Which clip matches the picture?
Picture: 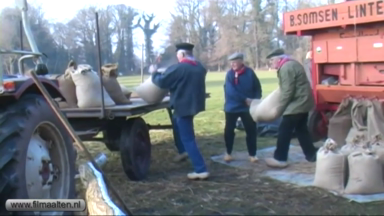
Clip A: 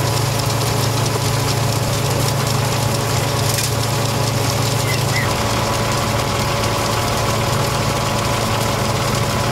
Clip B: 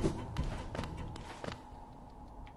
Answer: A